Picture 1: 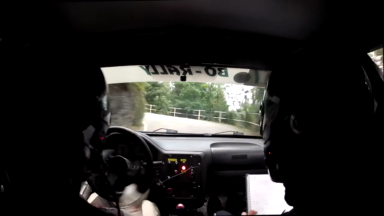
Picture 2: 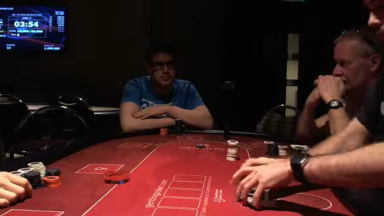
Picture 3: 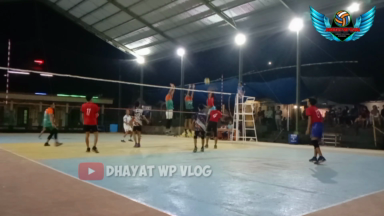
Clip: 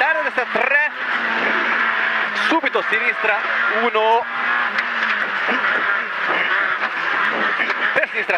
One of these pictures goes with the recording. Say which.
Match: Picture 1